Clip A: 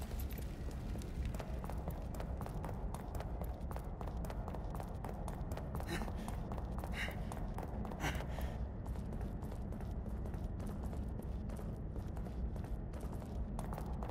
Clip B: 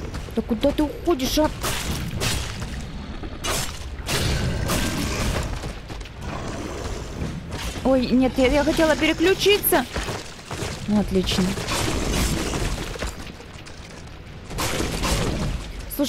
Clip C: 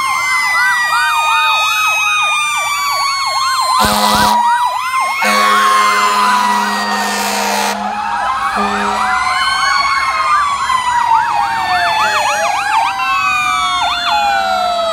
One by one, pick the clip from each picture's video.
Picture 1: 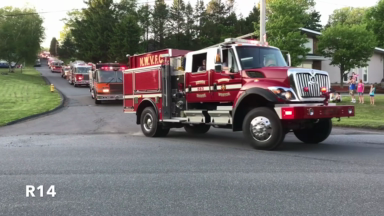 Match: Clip C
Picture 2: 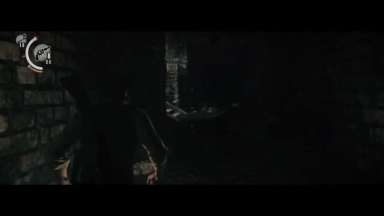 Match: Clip A